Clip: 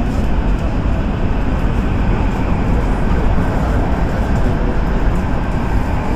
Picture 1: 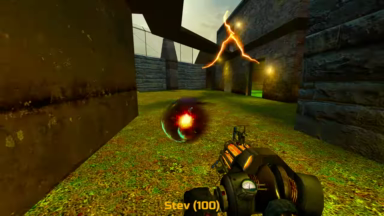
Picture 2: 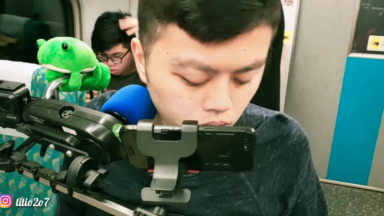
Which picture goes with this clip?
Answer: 2